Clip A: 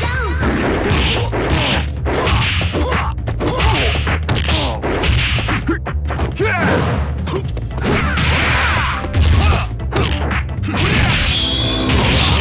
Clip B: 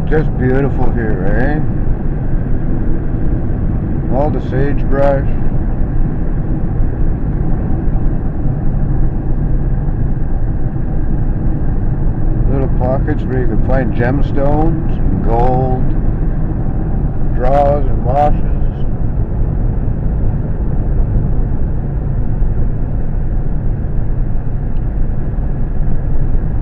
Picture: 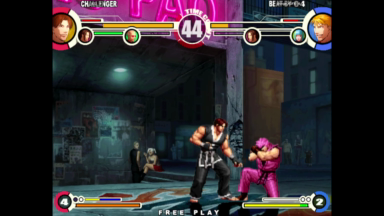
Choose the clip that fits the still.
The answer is A